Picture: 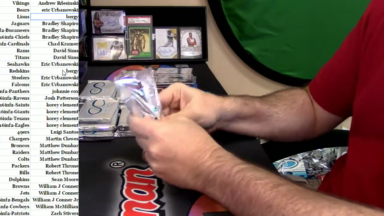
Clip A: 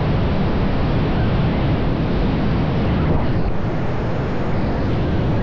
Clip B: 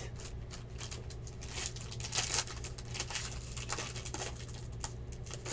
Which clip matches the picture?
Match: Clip B